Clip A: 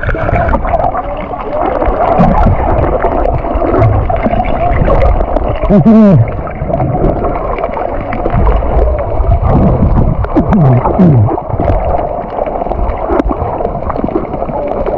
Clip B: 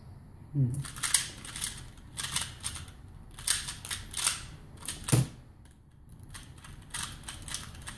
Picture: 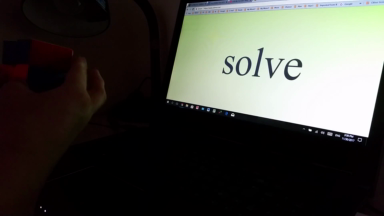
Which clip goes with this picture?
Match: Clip B